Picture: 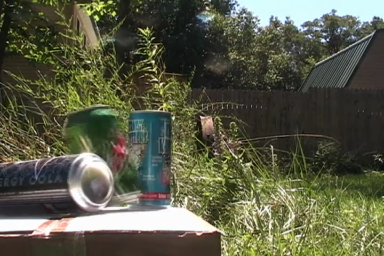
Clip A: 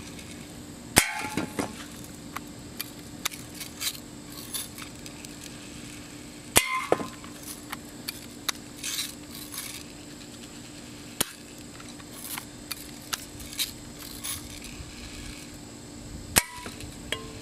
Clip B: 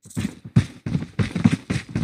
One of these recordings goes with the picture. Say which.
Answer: A